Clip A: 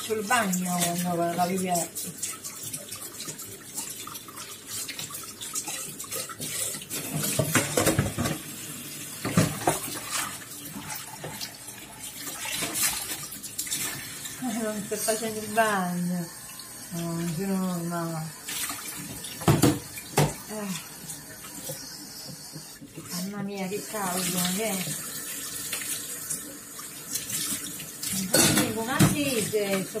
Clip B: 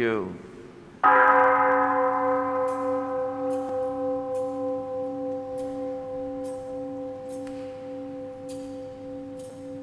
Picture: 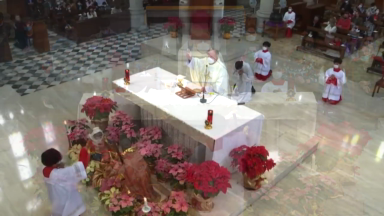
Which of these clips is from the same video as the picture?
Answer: B